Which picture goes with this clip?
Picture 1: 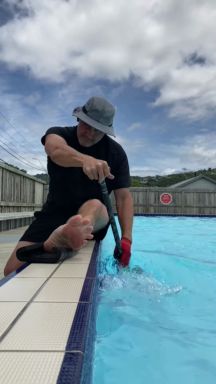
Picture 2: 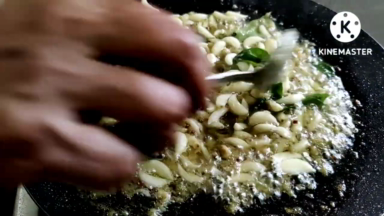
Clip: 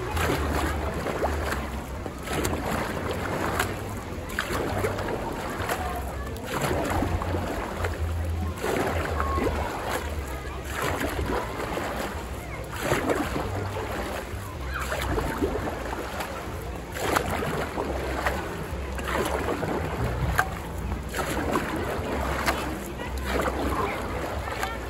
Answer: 1